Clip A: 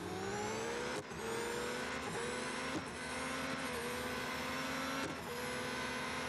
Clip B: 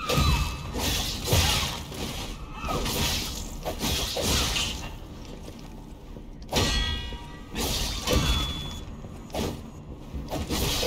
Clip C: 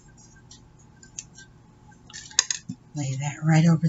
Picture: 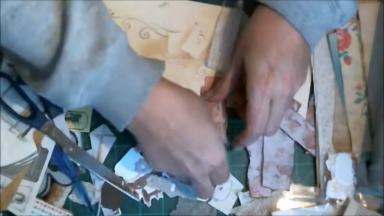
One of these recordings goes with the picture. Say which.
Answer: C